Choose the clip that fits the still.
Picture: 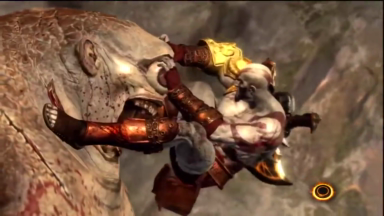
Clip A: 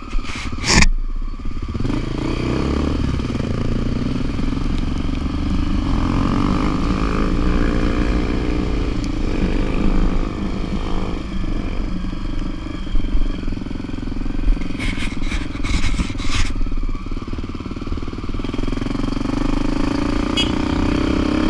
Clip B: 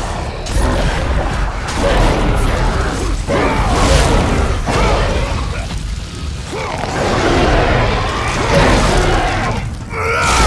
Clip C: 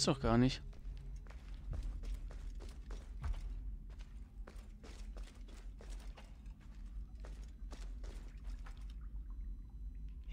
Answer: B